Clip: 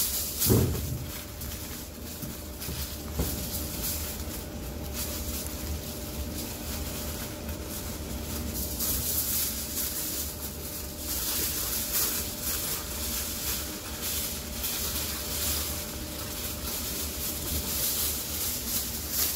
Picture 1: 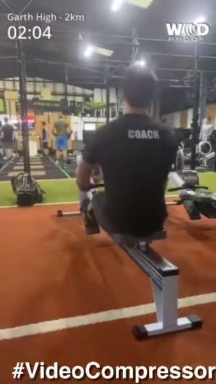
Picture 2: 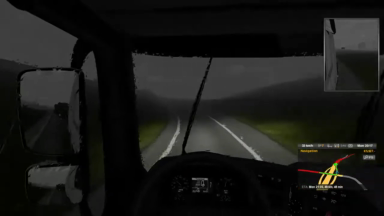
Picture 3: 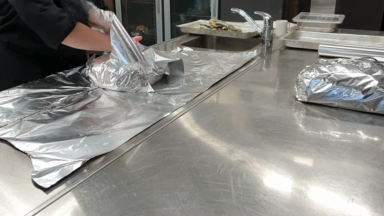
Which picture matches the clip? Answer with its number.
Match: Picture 3